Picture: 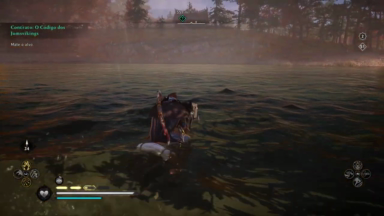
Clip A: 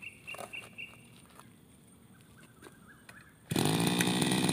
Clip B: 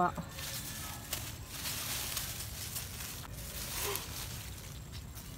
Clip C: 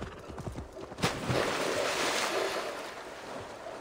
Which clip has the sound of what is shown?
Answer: C